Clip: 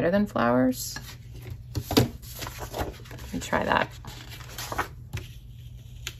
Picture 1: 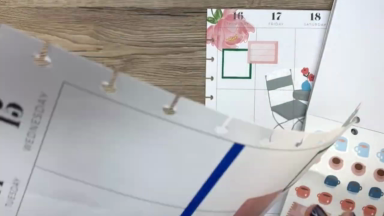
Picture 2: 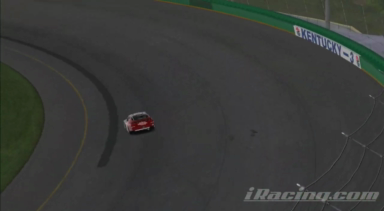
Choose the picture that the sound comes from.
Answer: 1